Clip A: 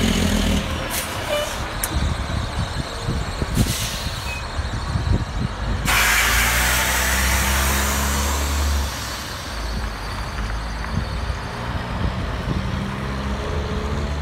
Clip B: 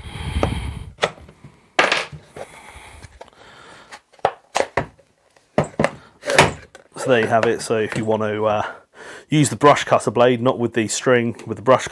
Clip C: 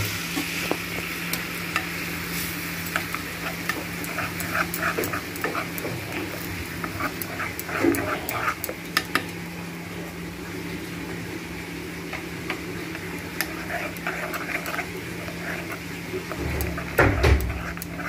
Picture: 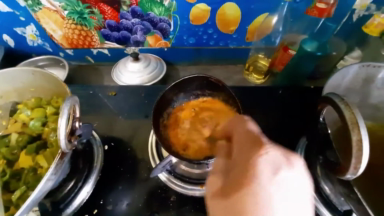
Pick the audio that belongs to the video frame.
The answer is C